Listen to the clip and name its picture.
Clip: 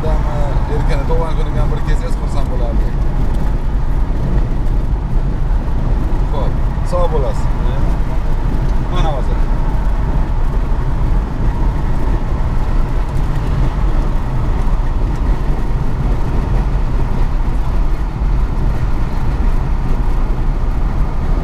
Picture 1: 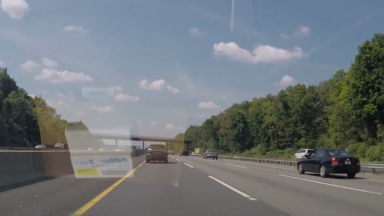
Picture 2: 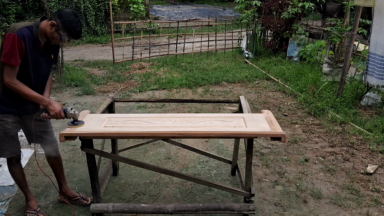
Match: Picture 1